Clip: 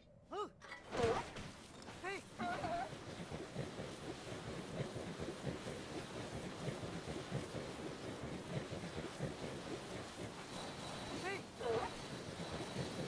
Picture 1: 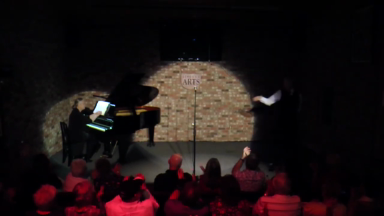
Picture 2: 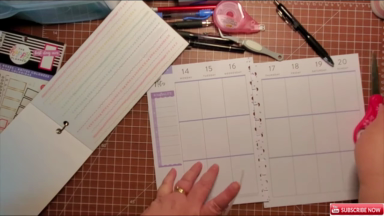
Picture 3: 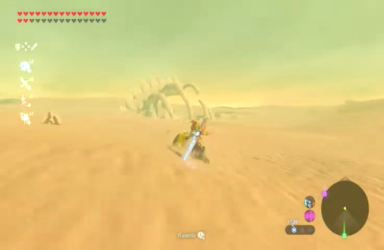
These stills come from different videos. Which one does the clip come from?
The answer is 3